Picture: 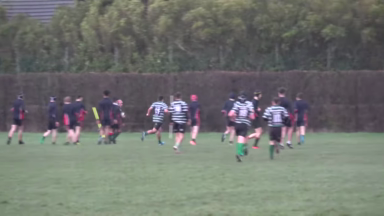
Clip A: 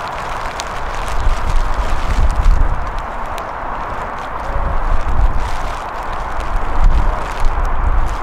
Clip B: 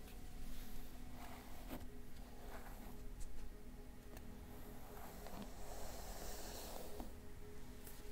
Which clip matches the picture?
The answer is A